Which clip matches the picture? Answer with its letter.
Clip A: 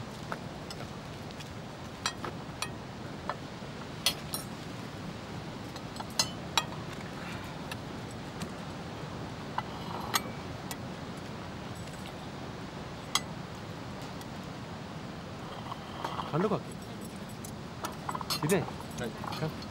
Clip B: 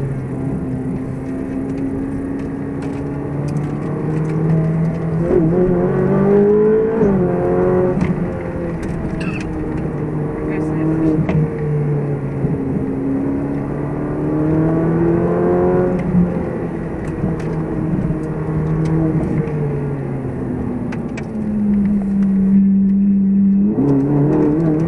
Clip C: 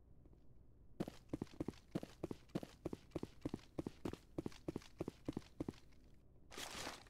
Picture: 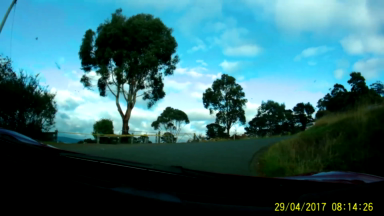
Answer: B